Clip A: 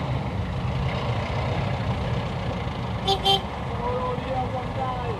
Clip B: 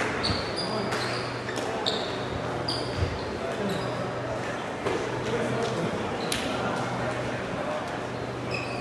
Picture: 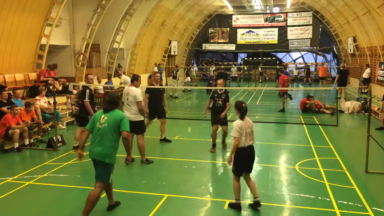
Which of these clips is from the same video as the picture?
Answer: B